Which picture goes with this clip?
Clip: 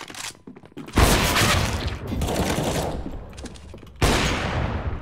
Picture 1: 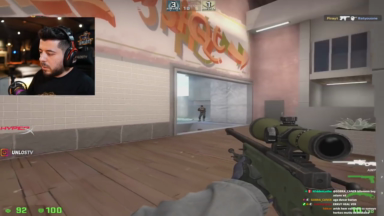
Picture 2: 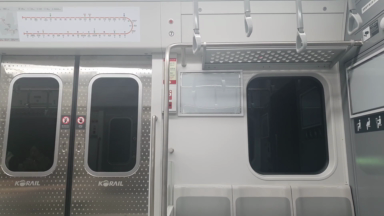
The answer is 1